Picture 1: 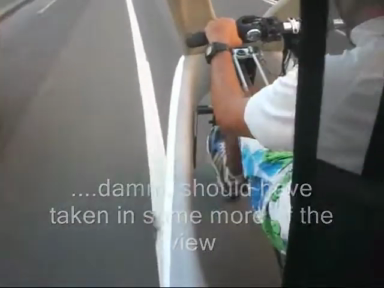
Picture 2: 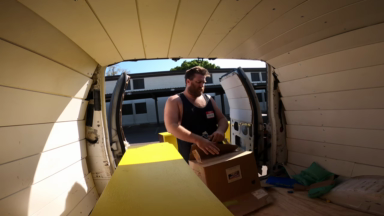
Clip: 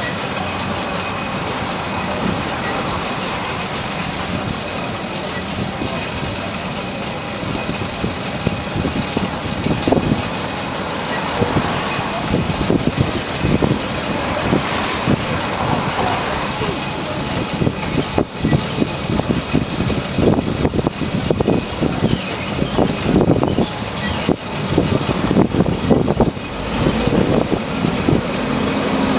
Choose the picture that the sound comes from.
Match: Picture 1